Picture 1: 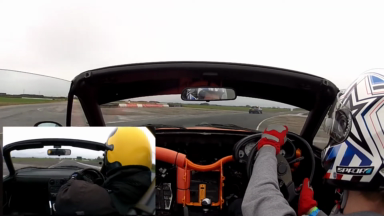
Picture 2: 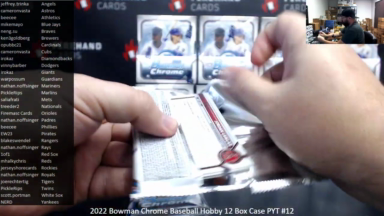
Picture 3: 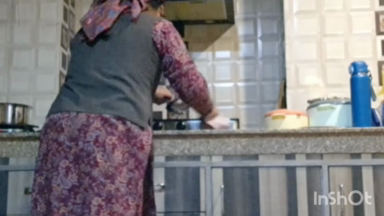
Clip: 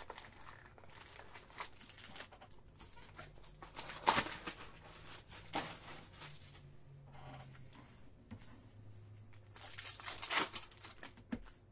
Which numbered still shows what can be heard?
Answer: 2